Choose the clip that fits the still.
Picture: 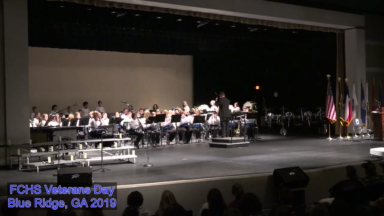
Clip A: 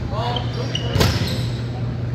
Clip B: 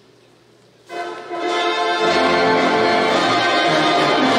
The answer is B